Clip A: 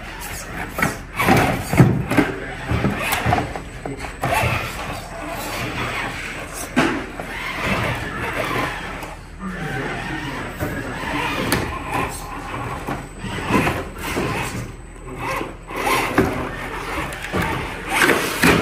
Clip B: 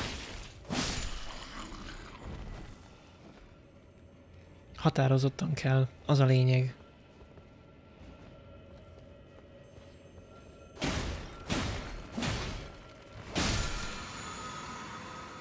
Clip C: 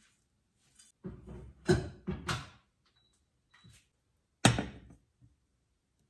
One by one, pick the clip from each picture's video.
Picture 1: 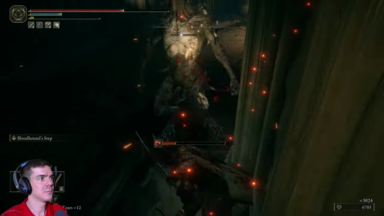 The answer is B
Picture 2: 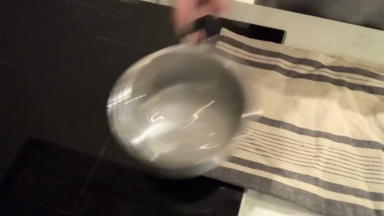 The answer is C